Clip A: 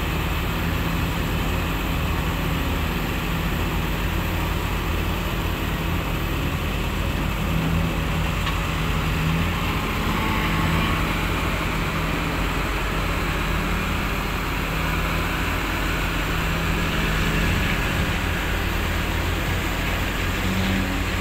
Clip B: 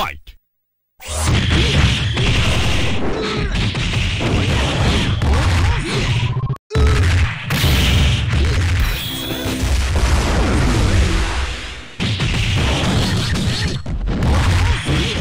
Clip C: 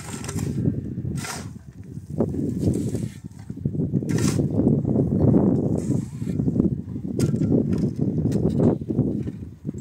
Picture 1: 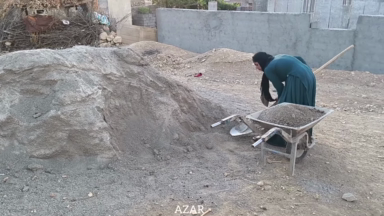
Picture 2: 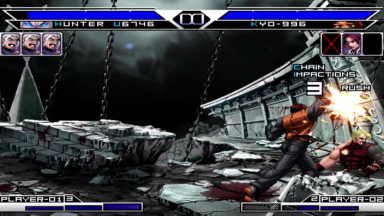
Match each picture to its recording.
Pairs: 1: C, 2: B